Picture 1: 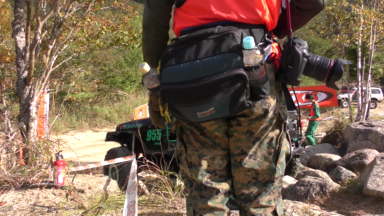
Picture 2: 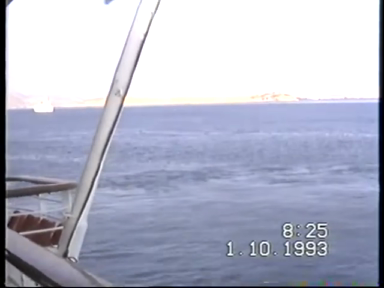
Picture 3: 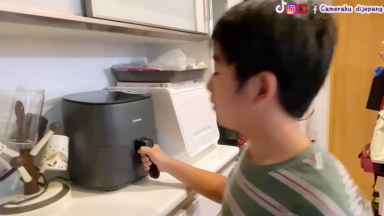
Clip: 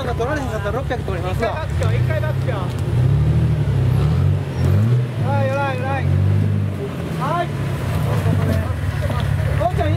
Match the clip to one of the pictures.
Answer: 1